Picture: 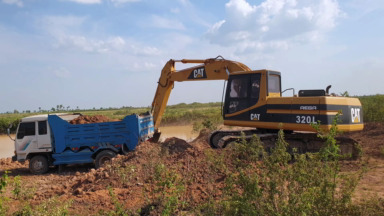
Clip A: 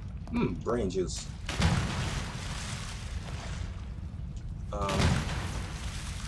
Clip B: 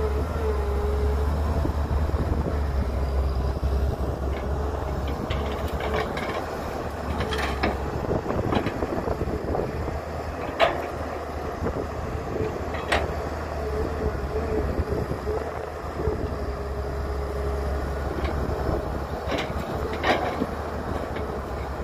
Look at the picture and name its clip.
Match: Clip B